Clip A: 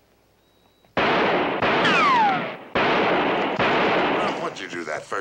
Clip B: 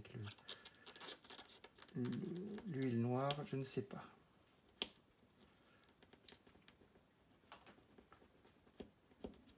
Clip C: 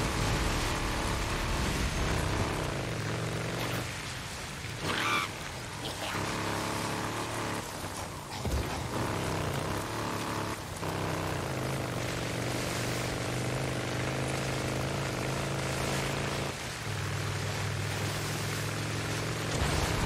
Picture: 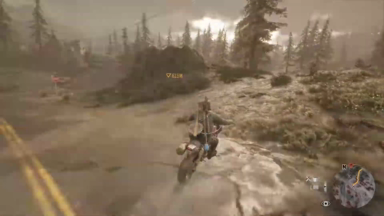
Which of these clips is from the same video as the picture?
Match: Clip C